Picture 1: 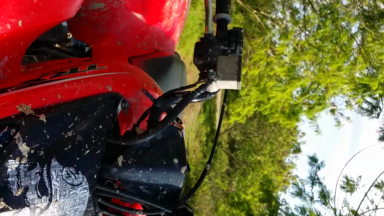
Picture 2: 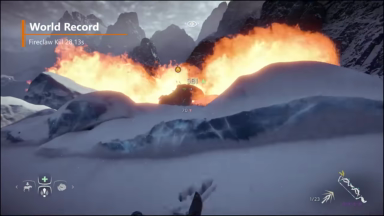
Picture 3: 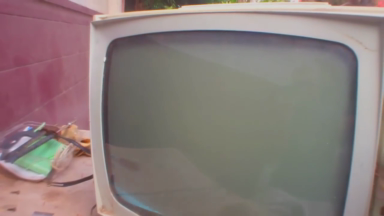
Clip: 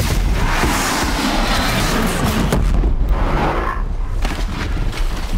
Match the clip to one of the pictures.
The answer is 2